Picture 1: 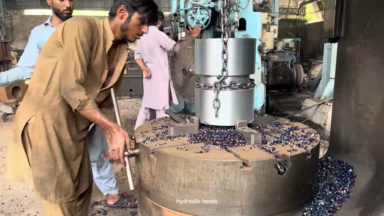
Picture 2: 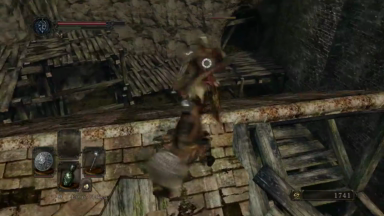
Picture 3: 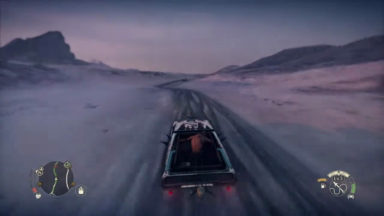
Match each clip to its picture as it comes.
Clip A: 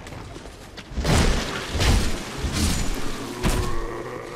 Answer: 2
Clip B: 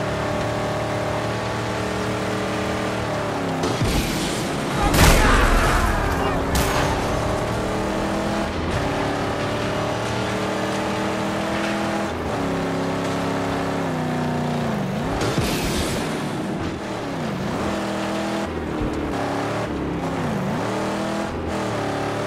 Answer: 3